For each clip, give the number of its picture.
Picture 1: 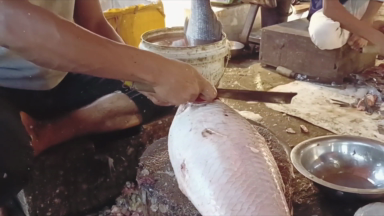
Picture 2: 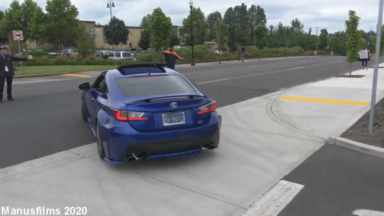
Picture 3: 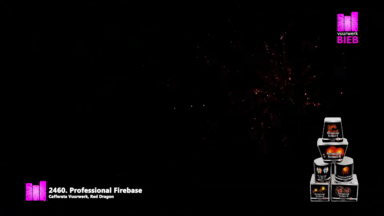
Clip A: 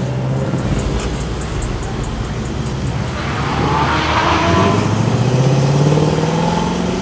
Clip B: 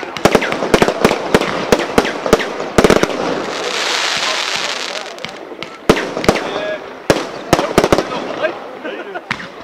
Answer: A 2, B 3